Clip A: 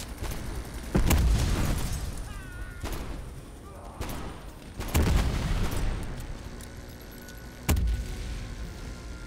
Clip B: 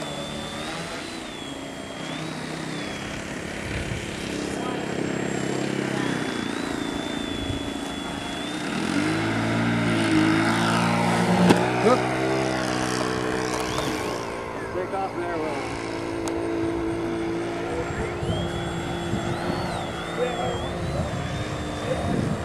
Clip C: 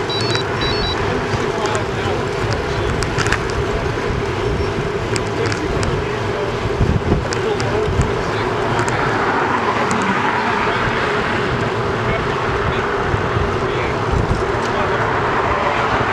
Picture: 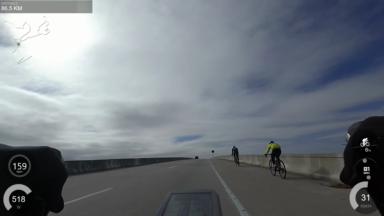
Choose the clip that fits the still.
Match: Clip C